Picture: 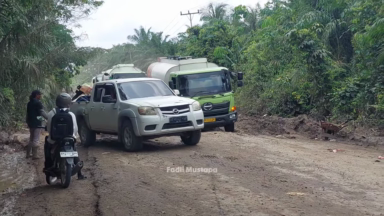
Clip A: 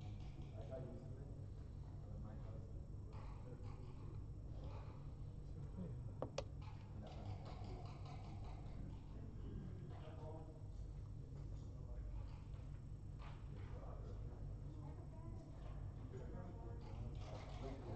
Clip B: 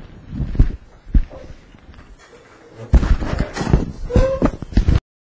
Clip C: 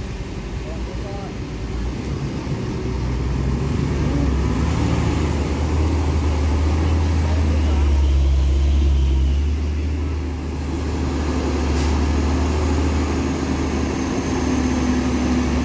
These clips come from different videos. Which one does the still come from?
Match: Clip C